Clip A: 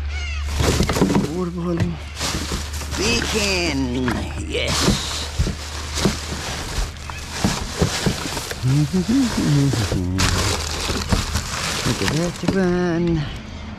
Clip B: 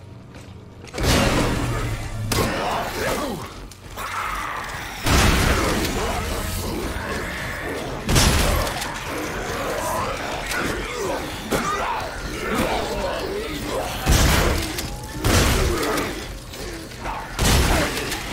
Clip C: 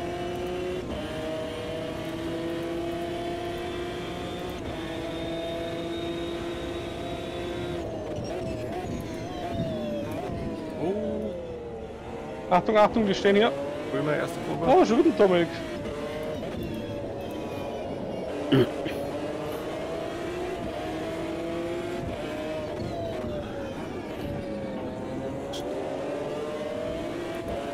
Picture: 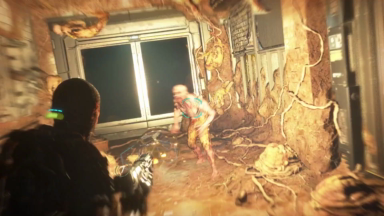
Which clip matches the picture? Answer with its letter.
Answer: B